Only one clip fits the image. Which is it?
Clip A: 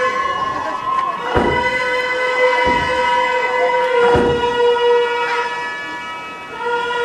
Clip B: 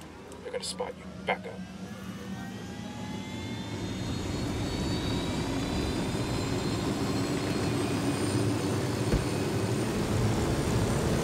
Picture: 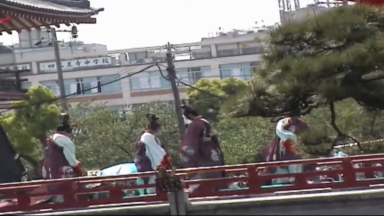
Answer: A